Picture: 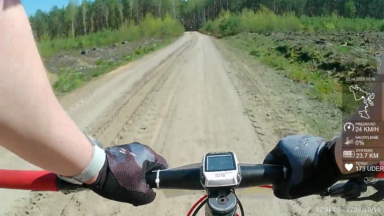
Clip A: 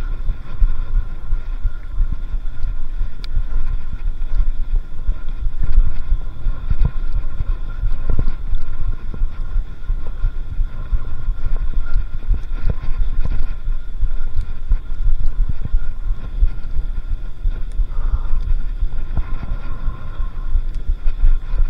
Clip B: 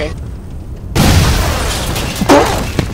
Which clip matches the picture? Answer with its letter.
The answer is A